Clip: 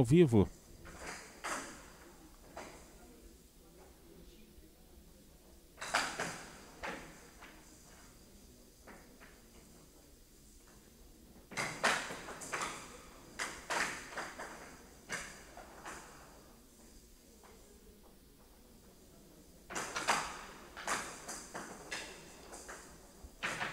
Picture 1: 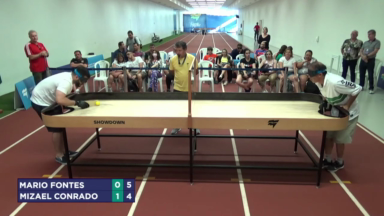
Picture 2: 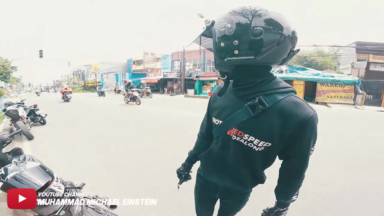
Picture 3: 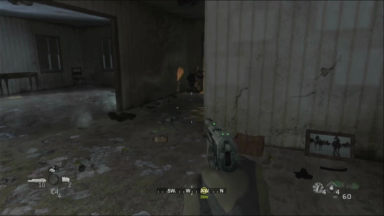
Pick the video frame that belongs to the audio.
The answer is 1